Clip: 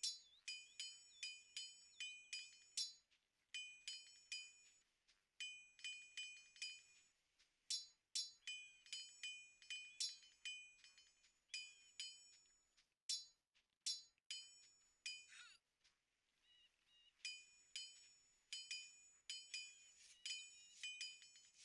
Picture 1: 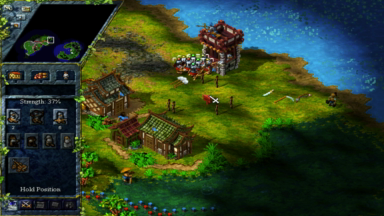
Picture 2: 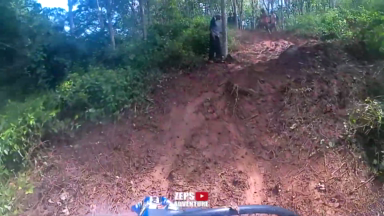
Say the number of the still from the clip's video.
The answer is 1